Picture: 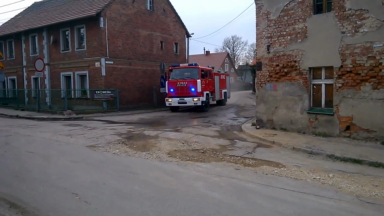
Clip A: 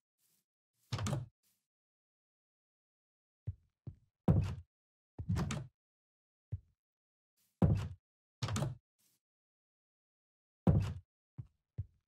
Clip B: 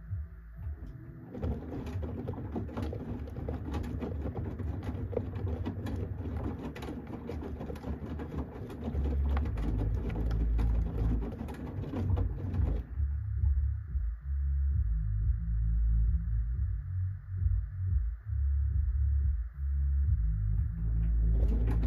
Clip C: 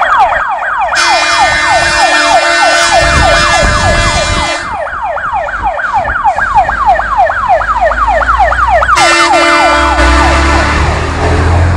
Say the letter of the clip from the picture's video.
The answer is C